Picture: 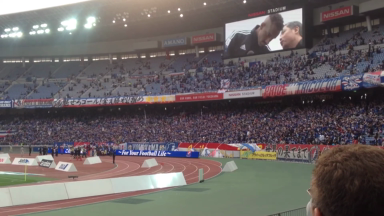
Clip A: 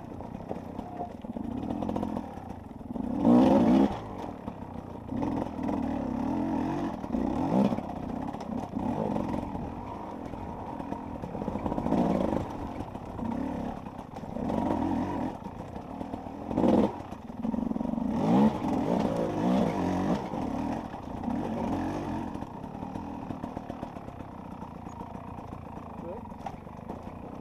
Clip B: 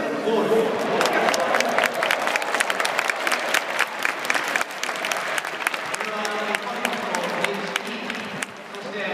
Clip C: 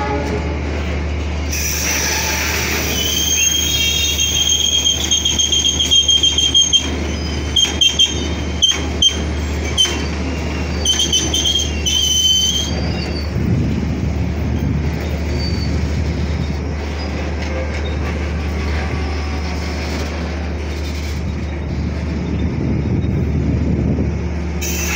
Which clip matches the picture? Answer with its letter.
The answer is B